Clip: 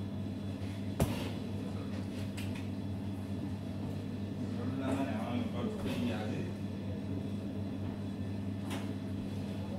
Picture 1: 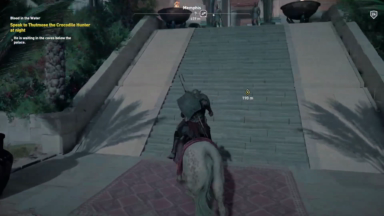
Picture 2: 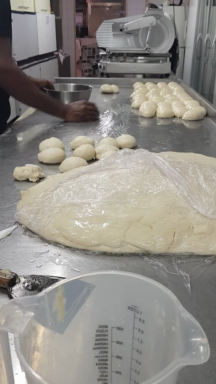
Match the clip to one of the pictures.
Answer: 2